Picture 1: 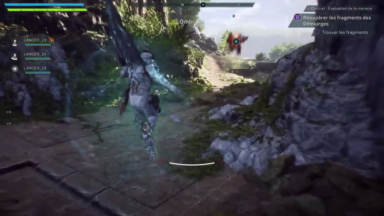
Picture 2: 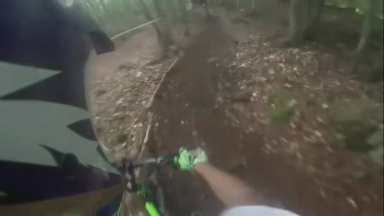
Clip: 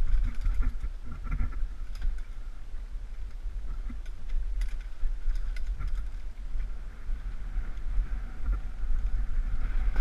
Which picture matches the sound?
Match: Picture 2